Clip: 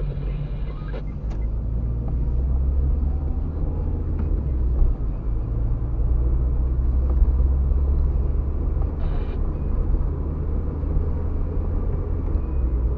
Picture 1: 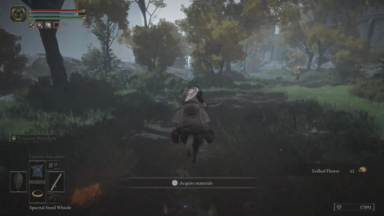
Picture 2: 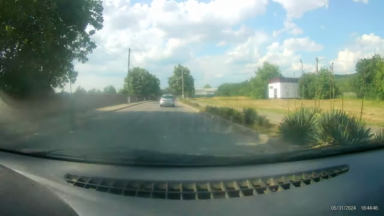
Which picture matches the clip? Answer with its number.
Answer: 2